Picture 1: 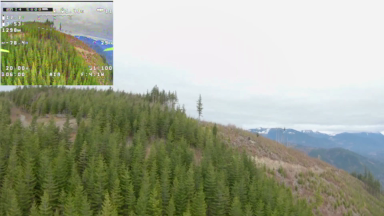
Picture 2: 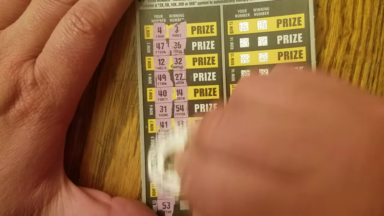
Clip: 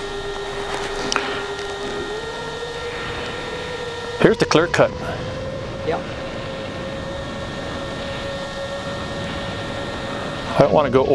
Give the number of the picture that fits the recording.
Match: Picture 1